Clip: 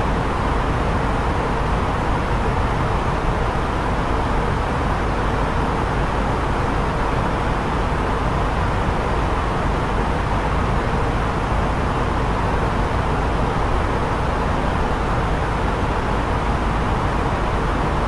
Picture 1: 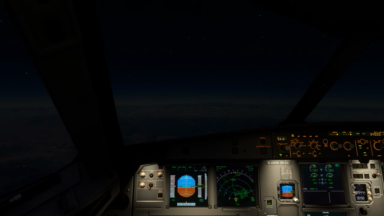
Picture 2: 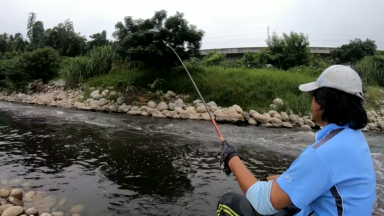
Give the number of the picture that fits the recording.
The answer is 1